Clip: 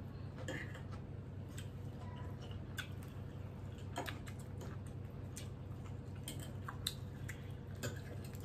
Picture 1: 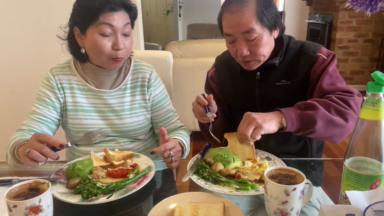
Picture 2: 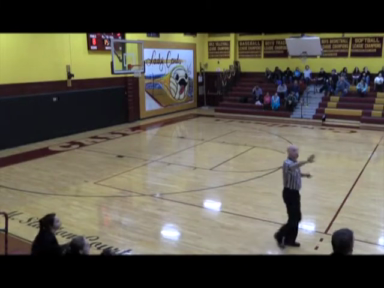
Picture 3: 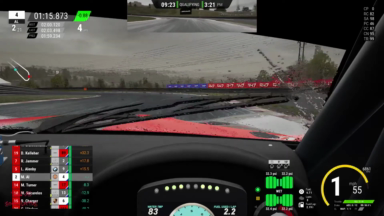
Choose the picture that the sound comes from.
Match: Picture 1